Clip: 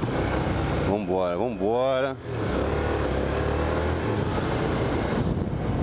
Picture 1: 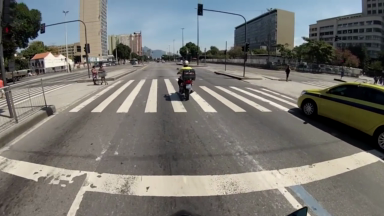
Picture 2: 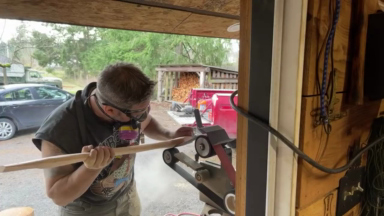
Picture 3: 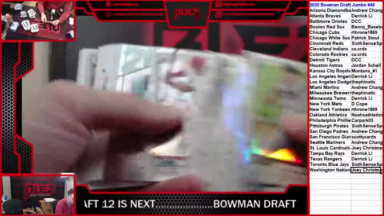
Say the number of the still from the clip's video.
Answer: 1